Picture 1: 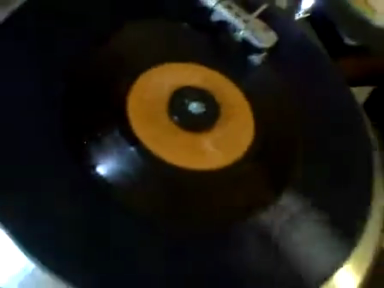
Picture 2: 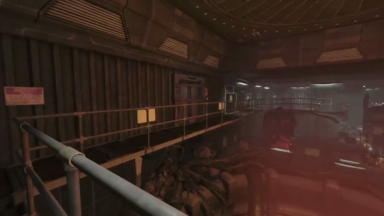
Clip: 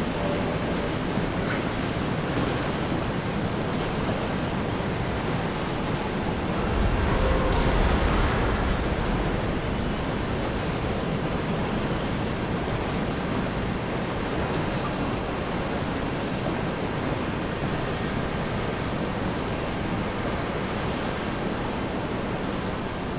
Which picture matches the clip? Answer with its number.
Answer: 2